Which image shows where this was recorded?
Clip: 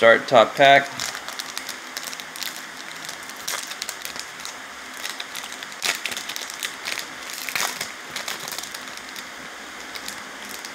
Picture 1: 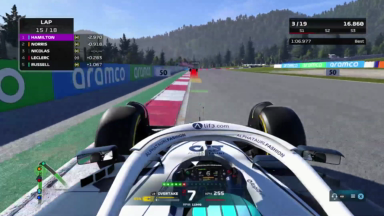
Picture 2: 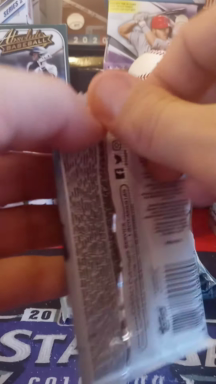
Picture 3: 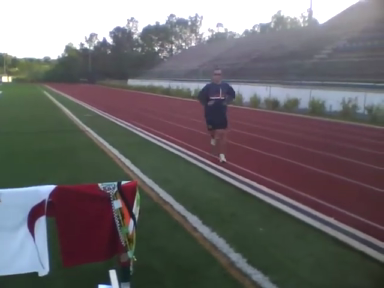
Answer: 2